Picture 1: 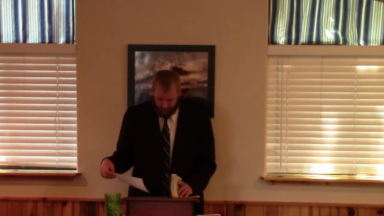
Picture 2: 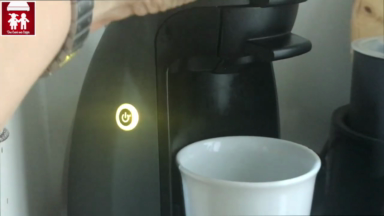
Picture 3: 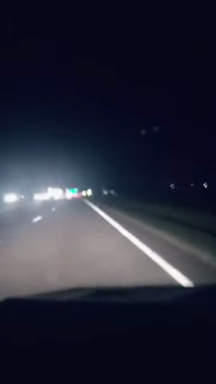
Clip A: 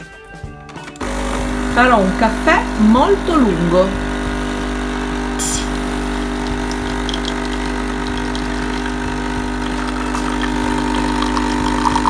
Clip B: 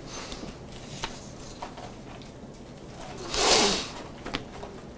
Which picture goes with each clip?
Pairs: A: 2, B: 1